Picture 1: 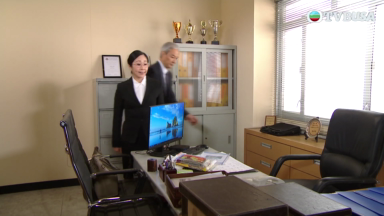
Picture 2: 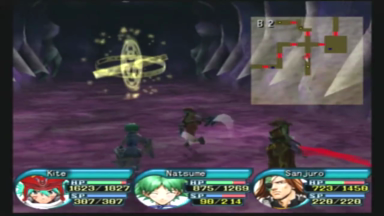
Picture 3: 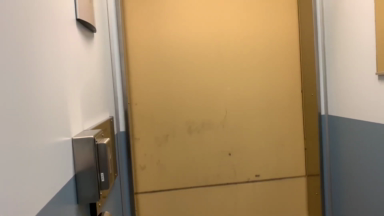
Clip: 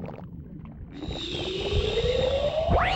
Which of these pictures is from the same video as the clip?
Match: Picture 2